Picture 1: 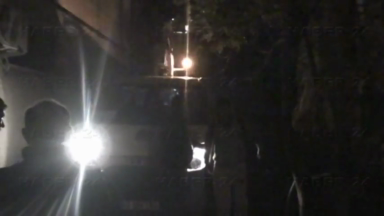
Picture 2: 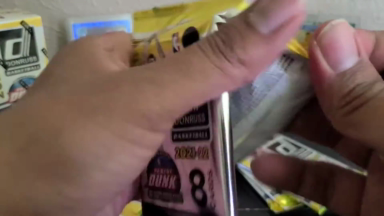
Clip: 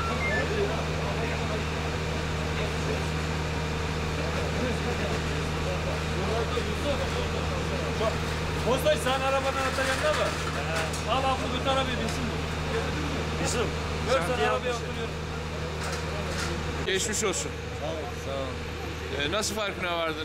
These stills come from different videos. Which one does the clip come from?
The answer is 1